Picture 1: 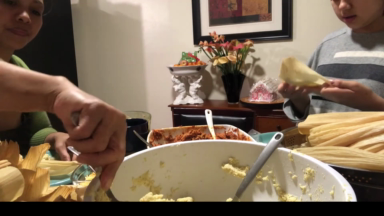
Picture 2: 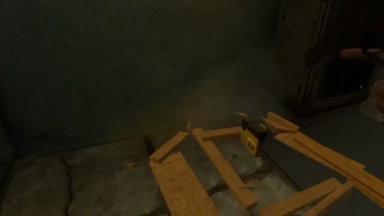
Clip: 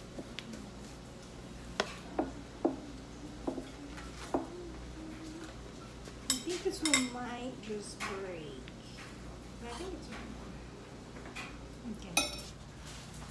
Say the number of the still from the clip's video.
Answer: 1